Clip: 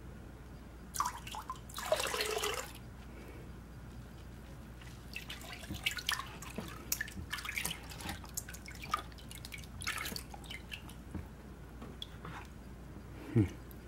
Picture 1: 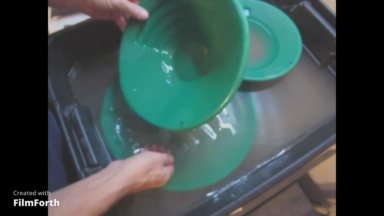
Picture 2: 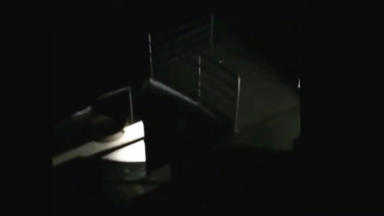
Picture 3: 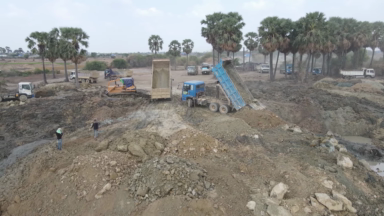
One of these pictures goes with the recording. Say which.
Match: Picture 1